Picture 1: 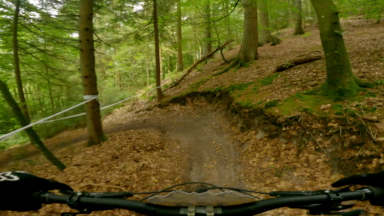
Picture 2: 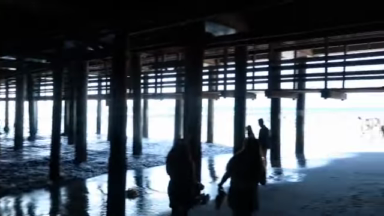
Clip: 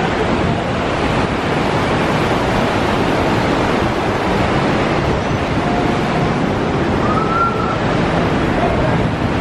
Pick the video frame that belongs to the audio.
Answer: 2